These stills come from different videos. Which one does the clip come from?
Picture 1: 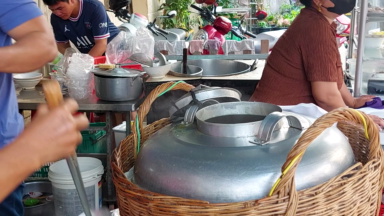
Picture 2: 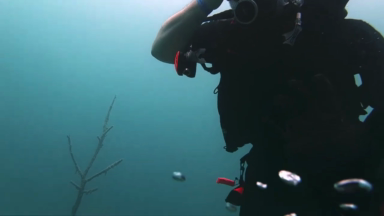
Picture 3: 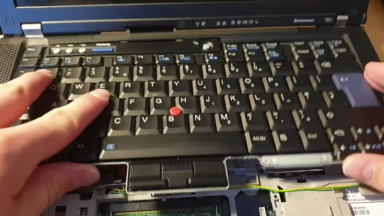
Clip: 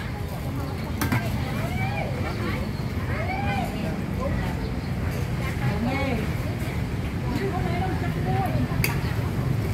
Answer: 1